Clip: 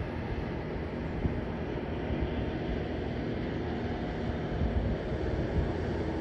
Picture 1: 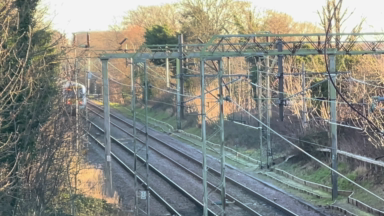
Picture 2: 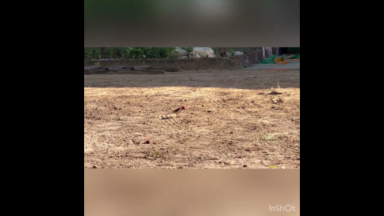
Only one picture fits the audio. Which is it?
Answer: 1